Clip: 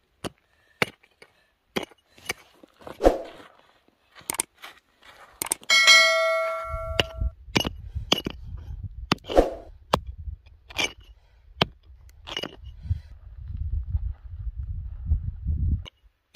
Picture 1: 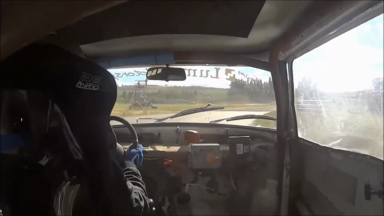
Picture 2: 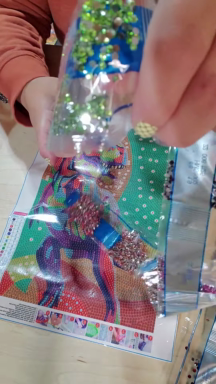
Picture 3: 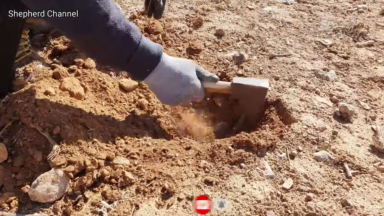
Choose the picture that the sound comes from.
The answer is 3